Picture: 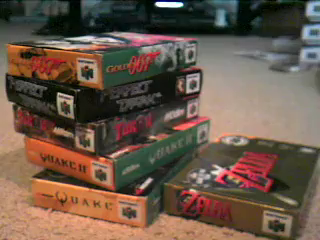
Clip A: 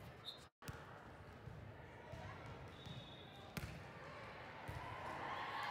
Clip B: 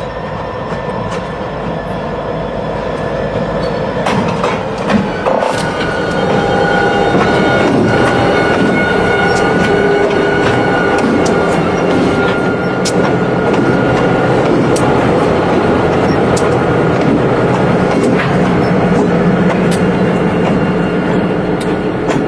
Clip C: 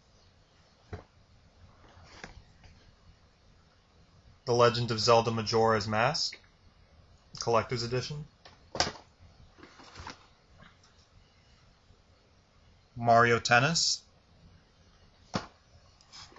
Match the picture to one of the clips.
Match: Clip C